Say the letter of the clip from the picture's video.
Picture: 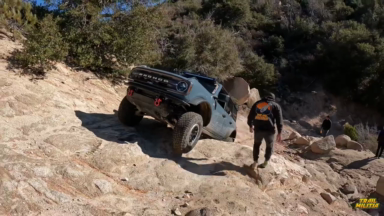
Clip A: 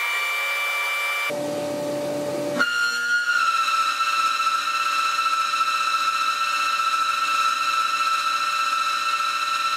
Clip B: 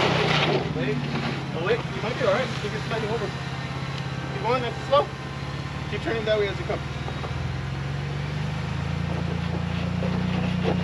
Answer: B